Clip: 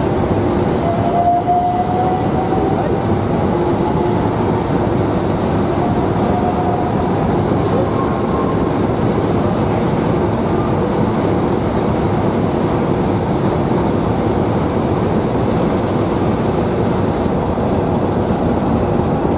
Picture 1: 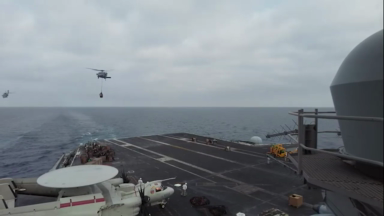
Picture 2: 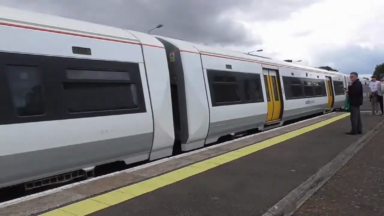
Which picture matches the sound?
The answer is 2